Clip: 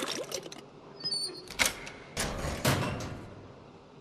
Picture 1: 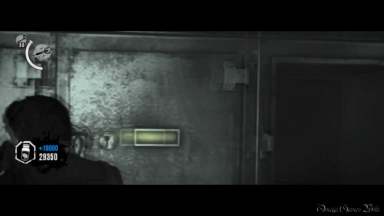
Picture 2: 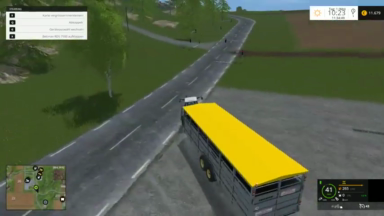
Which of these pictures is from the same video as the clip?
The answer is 1